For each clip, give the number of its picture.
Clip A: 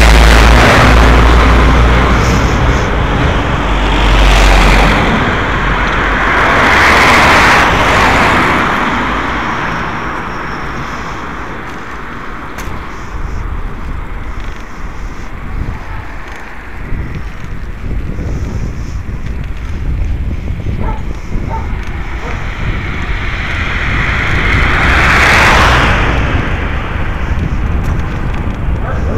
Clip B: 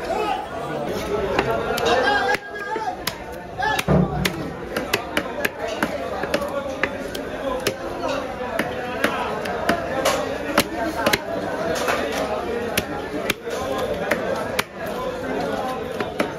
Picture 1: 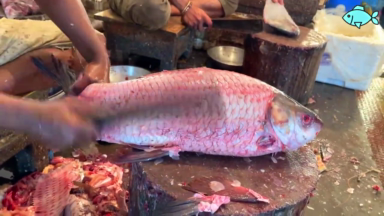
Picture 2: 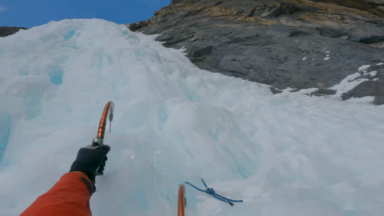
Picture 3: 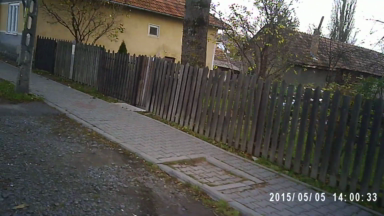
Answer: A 3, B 1